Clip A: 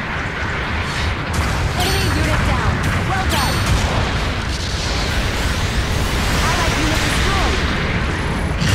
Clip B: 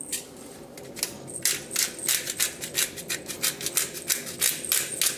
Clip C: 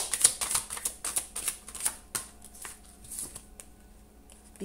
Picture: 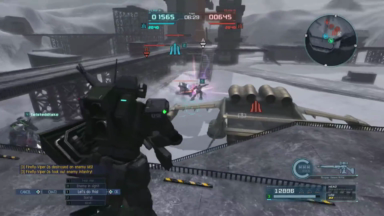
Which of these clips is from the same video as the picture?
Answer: A